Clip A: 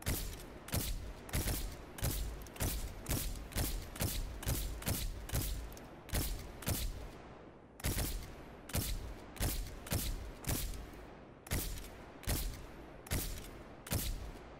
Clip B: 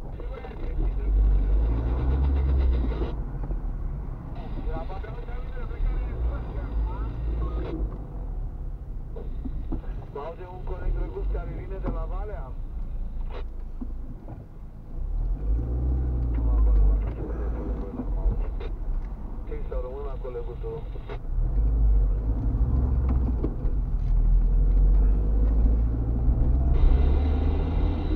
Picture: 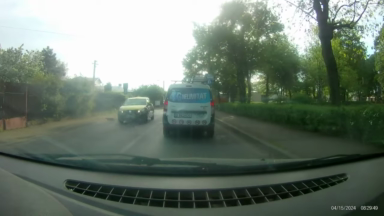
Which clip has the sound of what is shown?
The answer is B